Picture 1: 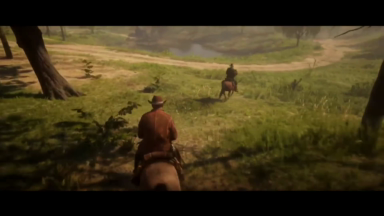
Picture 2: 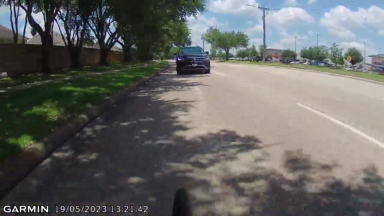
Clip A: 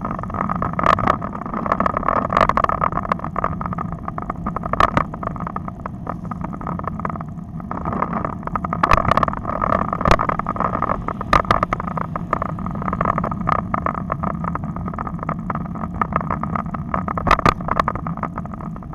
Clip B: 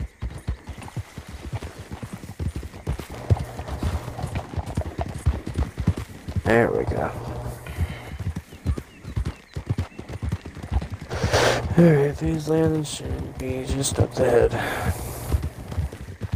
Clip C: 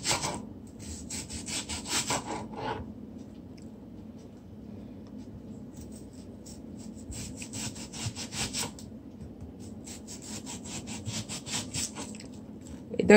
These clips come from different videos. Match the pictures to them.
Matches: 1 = B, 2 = A